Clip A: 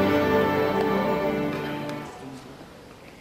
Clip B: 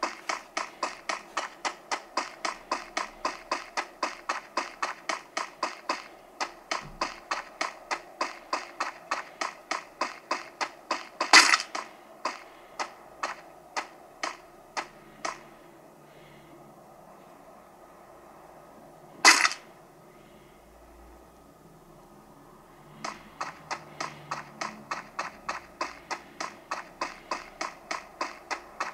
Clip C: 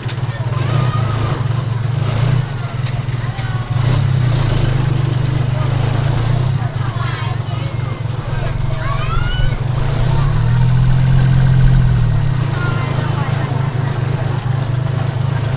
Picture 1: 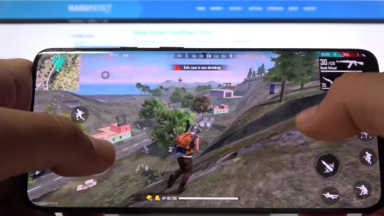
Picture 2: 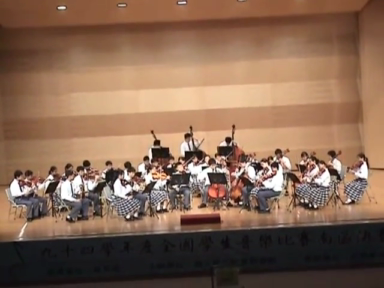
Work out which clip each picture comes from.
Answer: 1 B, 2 A